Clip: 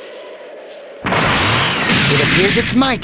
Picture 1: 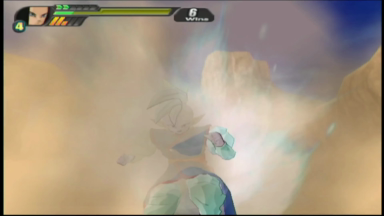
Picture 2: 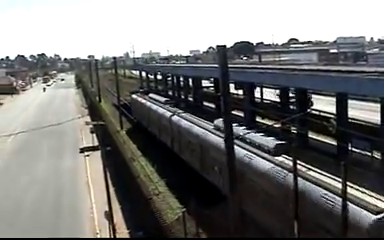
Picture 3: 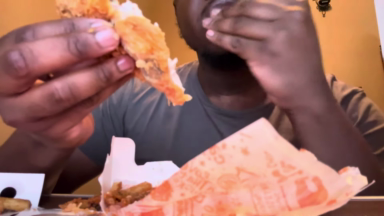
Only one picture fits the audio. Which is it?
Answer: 1